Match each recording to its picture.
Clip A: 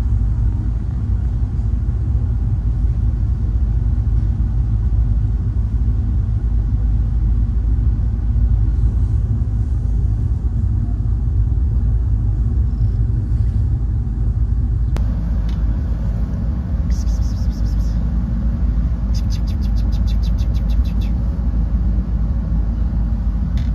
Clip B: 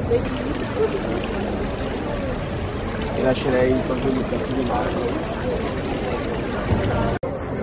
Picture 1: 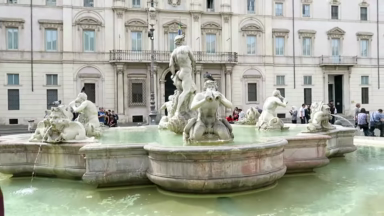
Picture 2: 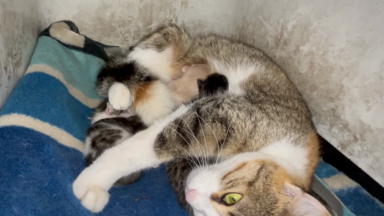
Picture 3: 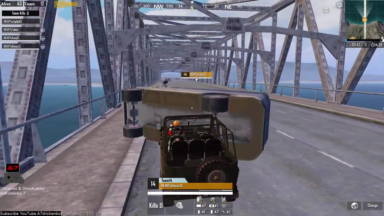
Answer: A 2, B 1